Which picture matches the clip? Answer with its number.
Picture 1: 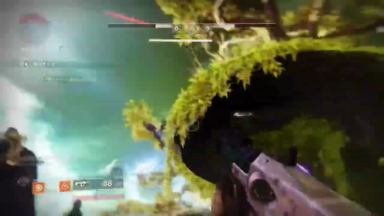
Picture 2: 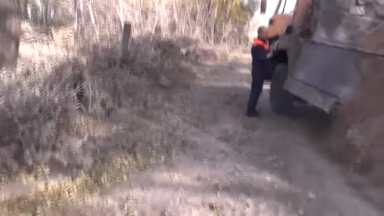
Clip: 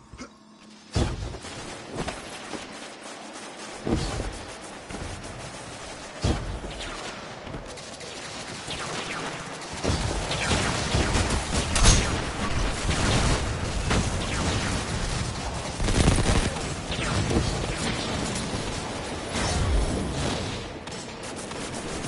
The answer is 1